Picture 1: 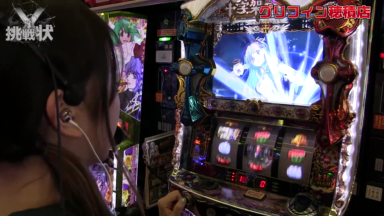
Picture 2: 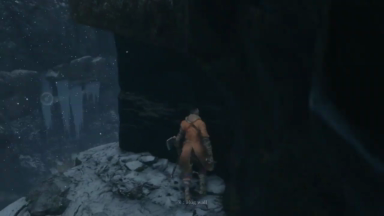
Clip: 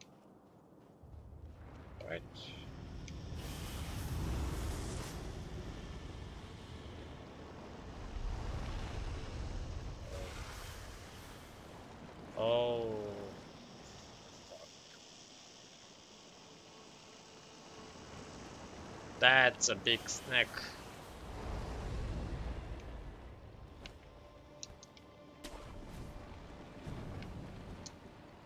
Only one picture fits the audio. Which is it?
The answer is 2